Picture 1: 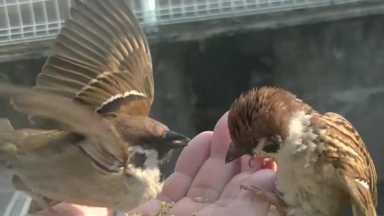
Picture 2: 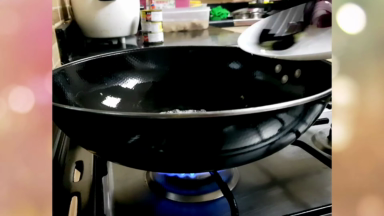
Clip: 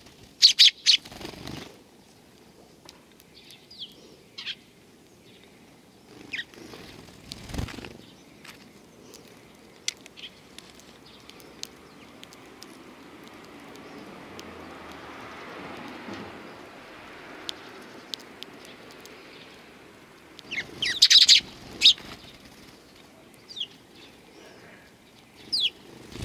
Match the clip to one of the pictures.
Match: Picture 1